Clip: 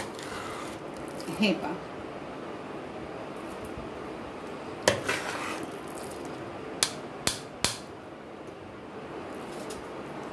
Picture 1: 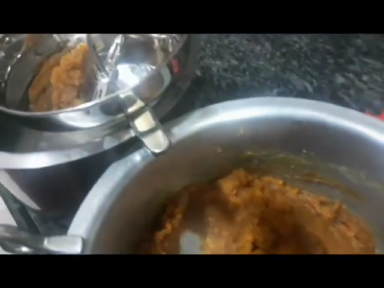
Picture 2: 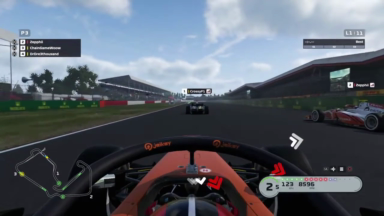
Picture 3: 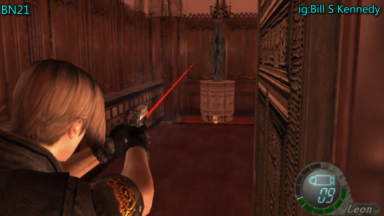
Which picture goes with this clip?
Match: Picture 1